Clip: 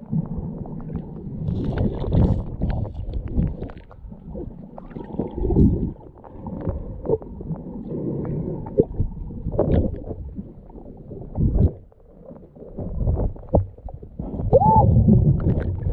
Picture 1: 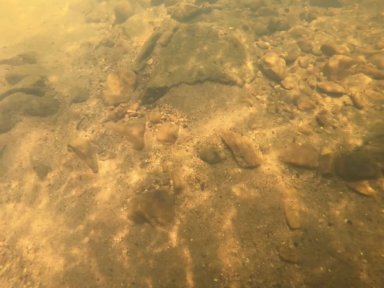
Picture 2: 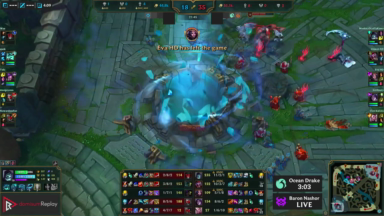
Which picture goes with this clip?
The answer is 1